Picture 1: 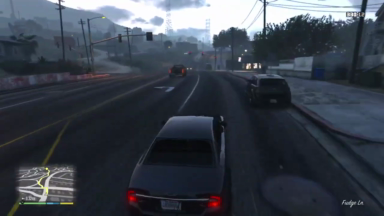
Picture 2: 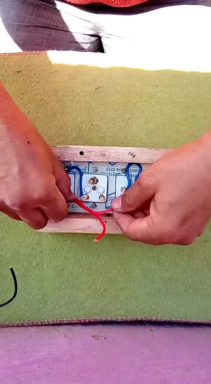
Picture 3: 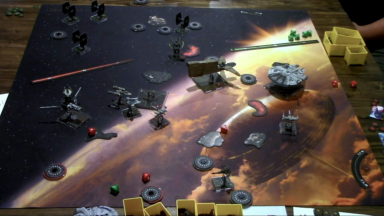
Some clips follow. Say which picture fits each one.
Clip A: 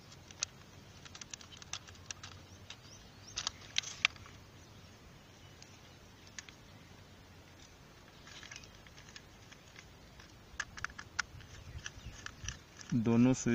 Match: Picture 2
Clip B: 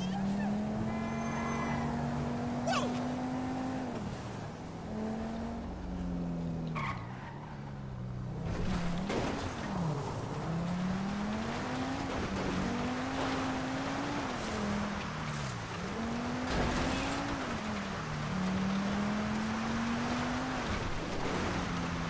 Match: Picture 1